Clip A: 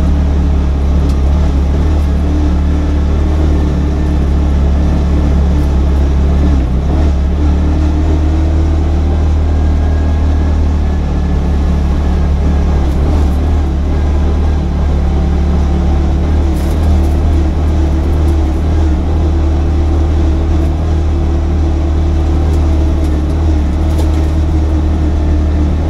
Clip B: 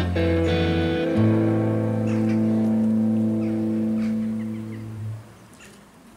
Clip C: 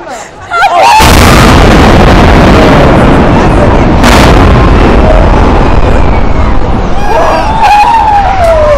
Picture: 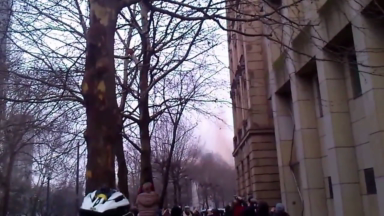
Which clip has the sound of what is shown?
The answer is C